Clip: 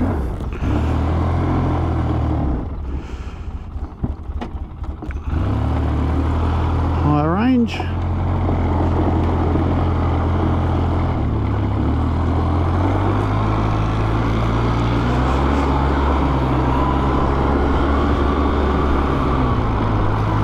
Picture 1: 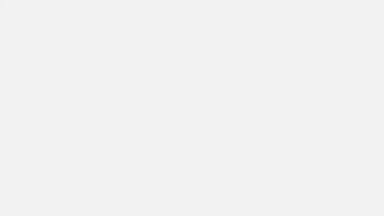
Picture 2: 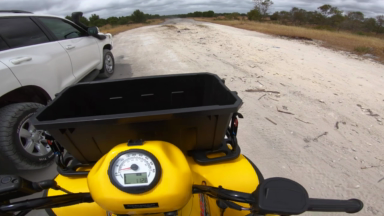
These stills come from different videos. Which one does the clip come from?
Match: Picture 2